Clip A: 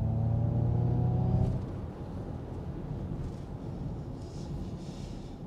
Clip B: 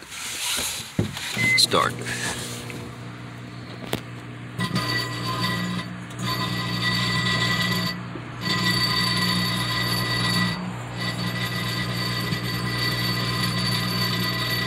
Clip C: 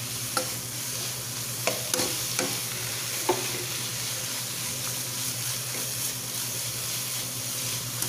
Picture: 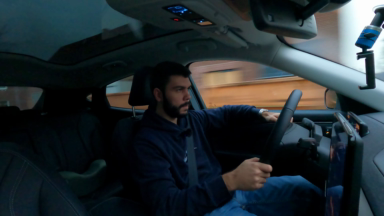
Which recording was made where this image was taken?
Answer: A